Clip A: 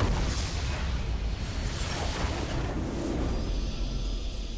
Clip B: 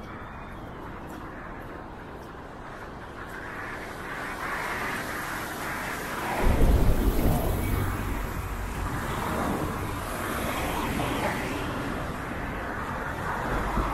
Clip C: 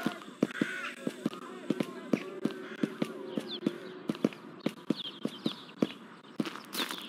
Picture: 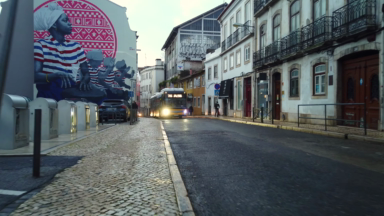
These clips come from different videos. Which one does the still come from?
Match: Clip B